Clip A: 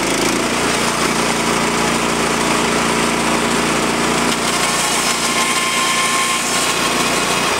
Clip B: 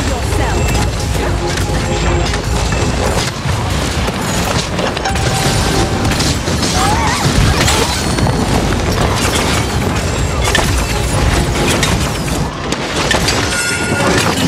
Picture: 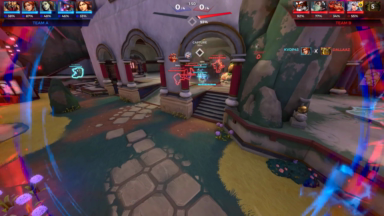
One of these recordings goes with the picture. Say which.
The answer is B